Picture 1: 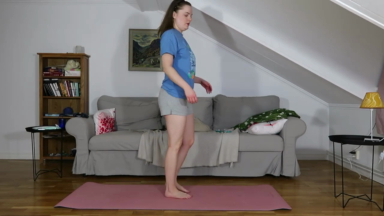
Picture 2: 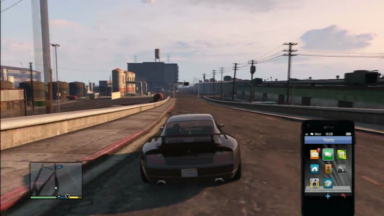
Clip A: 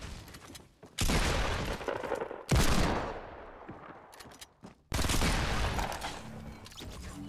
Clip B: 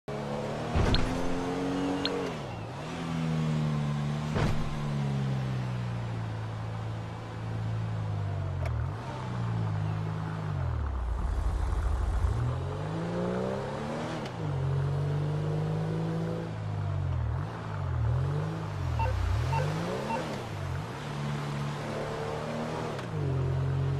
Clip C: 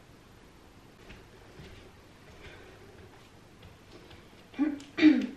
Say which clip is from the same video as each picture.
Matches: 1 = C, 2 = B